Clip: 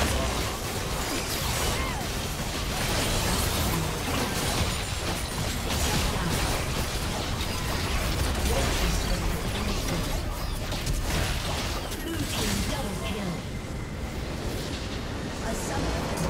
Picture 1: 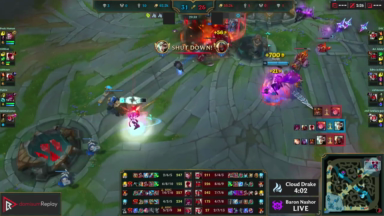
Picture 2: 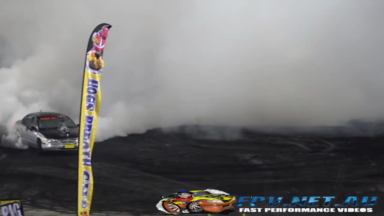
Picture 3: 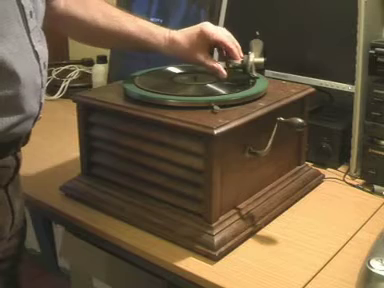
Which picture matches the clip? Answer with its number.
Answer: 1